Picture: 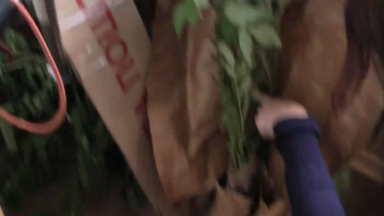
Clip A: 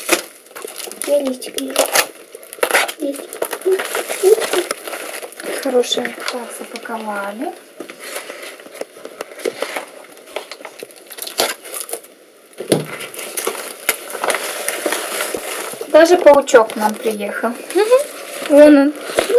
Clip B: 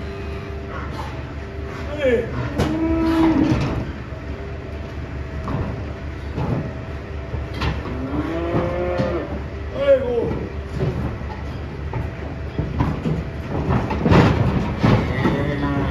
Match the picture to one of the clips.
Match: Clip A